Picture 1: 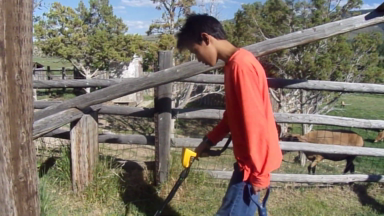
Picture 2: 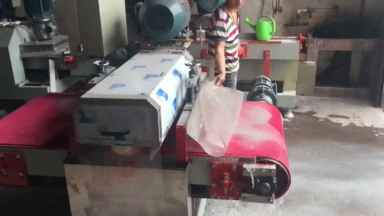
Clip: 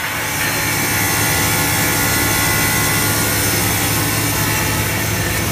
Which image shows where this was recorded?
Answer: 2